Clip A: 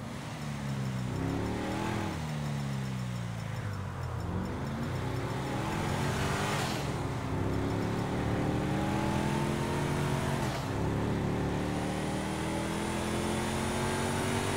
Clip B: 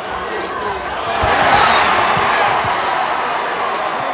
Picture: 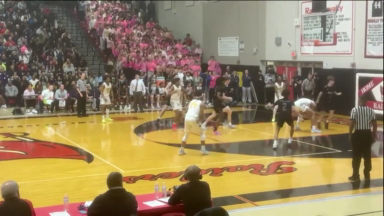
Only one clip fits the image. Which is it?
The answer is B